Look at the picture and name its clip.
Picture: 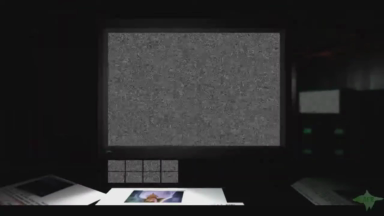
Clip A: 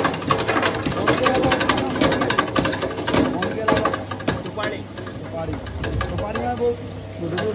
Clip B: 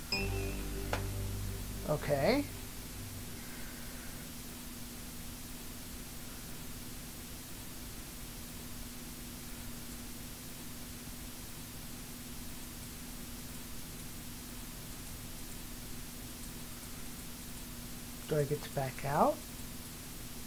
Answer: B